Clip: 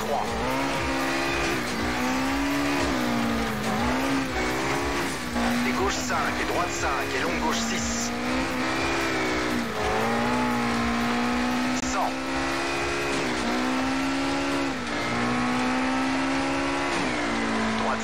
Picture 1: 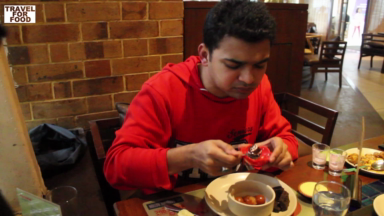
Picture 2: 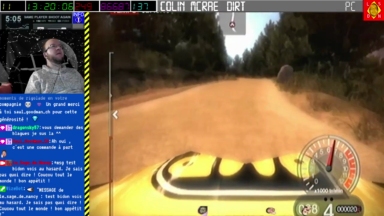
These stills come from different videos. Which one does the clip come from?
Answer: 2